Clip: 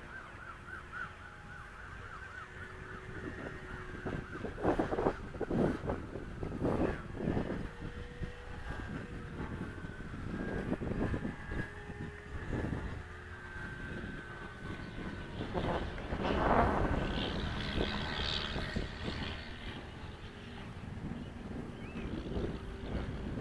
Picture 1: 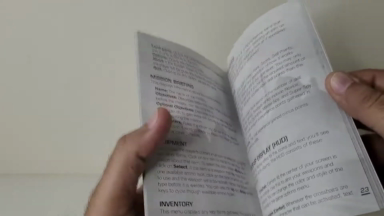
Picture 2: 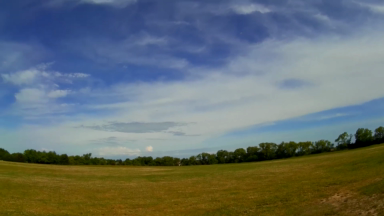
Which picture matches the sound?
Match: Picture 2